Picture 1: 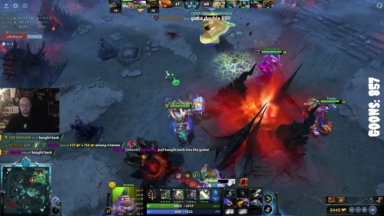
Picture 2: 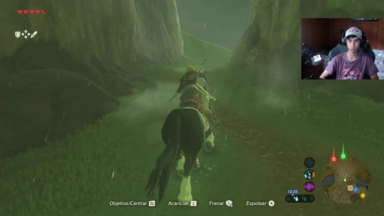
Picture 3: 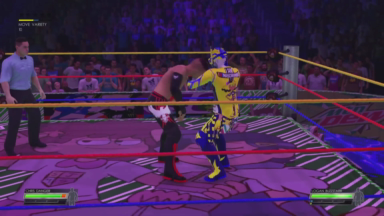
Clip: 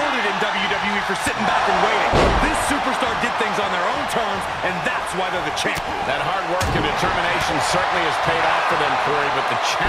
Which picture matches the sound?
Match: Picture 3